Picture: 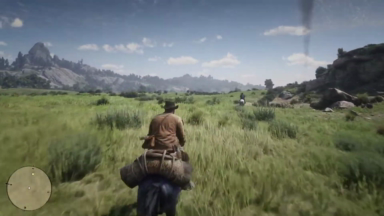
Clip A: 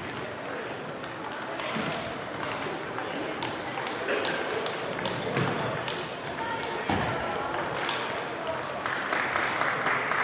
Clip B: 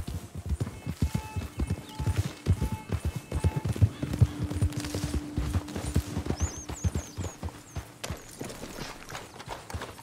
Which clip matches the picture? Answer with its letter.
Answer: B